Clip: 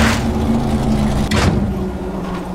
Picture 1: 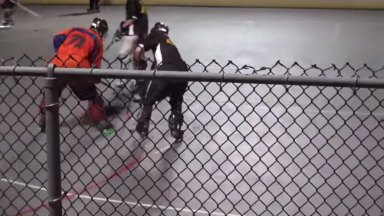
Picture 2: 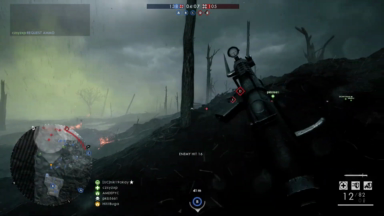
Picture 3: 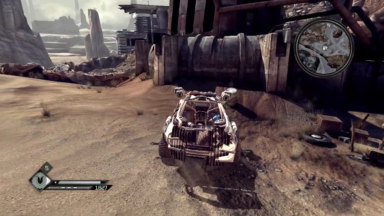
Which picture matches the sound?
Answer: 3